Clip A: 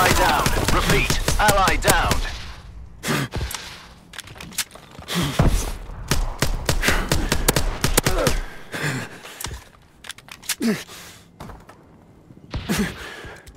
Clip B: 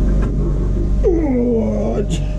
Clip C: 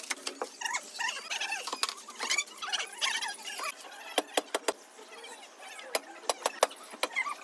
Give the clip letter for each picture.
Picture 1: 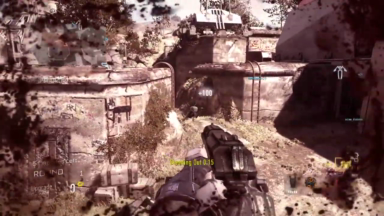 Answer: A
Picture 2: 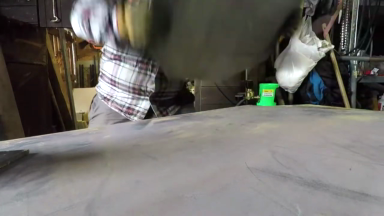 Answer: B